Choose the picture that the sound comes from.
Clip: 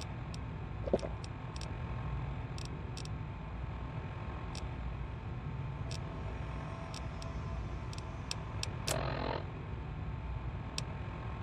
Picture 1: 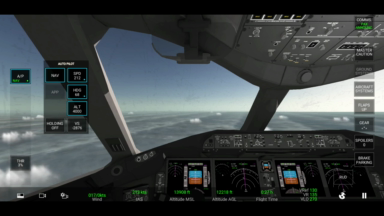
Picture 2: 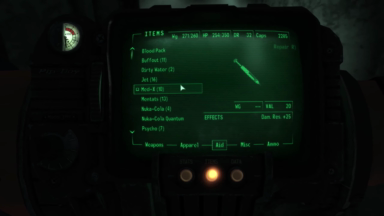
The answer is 2